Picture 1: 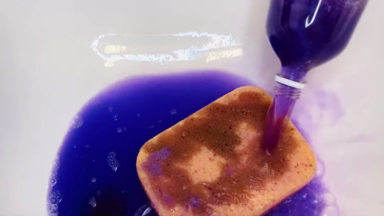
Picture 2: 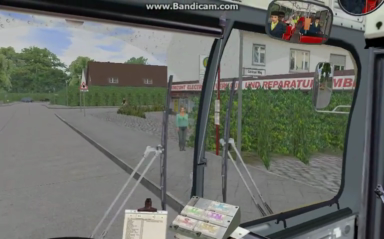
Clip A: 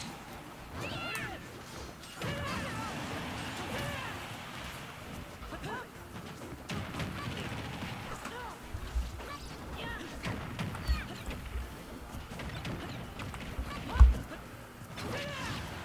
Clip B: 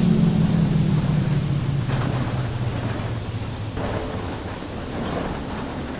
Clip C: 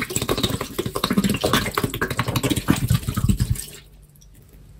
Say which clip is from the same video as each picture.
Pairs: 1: C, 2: B